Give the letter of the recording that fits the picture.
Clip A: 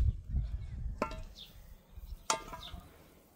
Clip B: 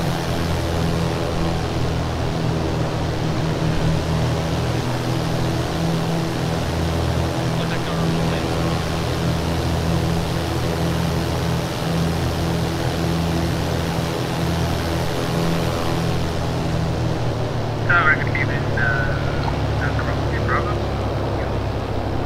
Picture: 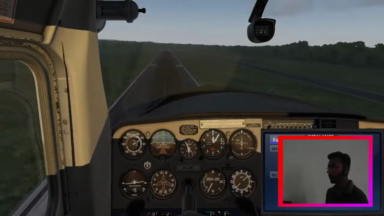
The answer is B